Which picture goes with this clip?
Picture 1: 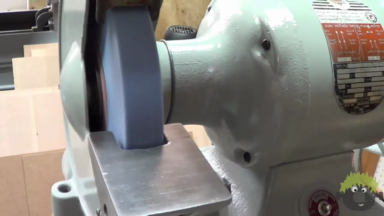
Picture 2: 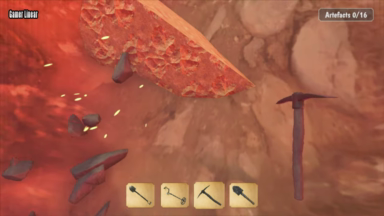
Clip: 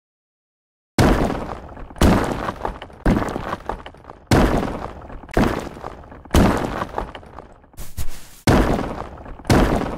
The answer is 2